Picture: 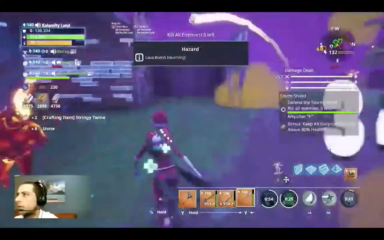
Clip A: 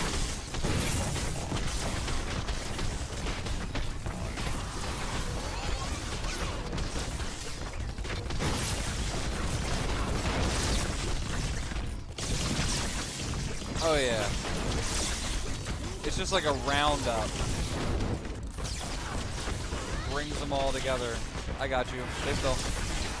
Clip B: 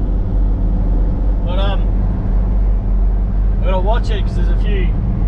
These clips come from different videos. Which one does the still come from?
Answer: A